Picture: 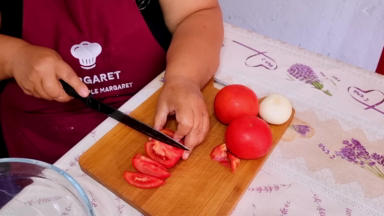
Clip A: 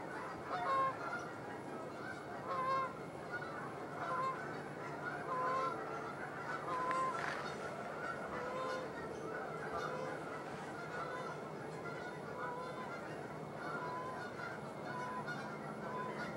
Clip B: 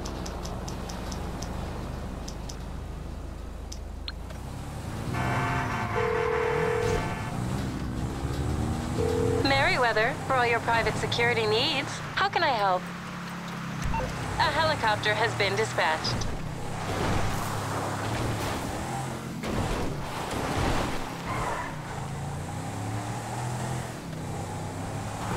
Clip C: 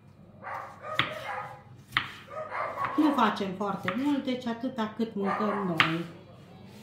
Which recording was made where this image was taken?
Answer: C